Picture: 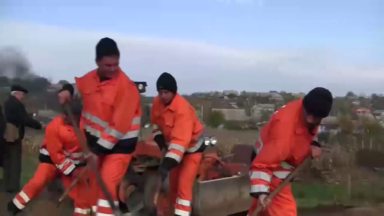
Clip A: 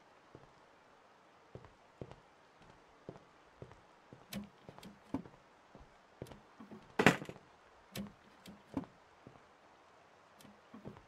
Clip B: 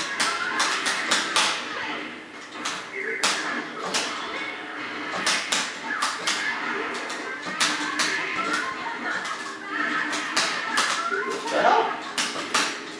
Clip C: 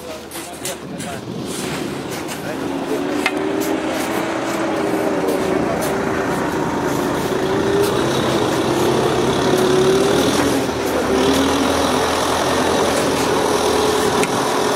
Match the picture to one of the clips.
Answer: C